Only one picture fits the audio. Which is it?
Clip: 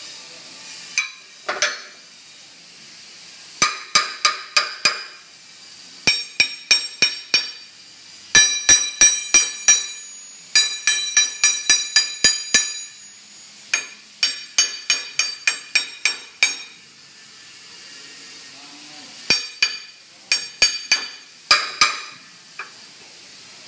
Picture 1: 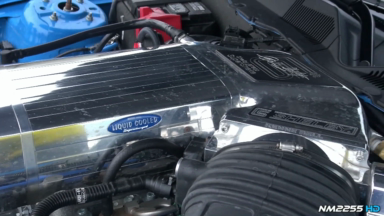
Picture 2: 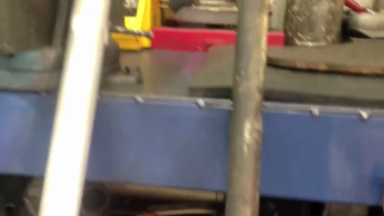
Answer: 2